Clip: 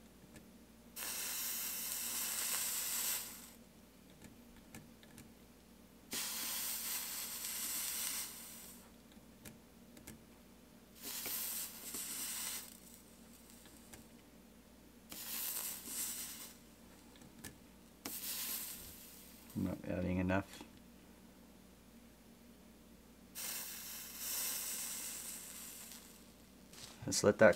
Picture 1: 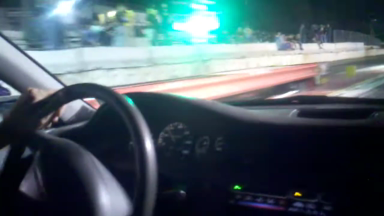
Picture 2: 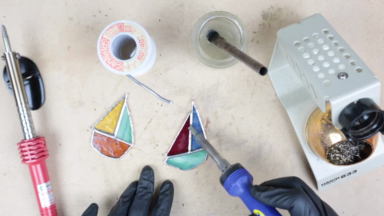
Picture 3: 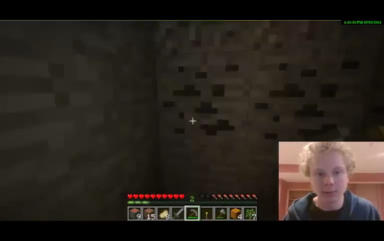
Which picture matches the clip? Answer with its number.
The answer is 2